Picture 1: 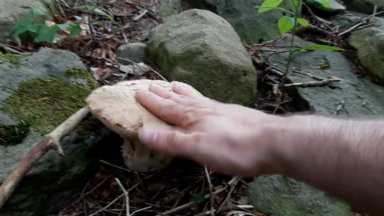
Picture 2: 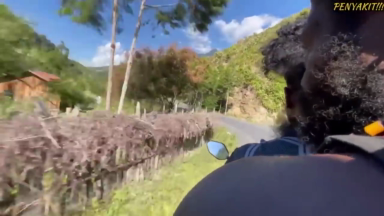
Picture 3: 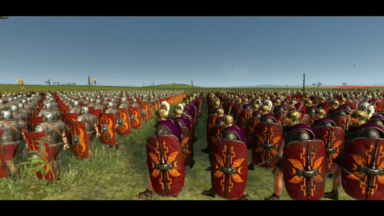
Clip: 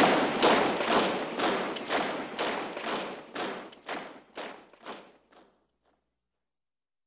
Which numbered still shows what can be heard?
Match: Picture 3